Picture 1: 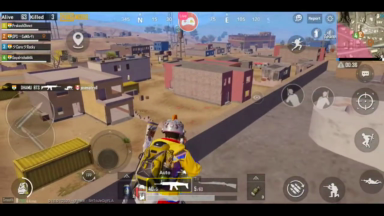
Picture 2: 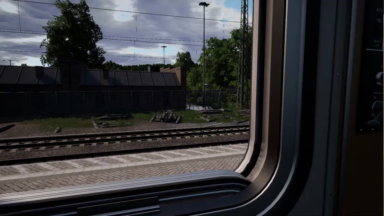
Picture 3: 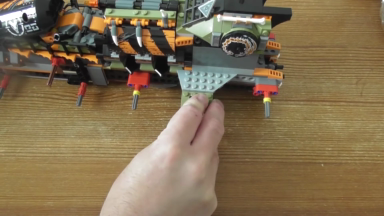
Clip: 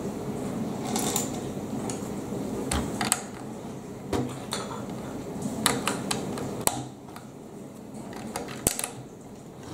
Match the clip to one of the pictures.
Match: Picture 3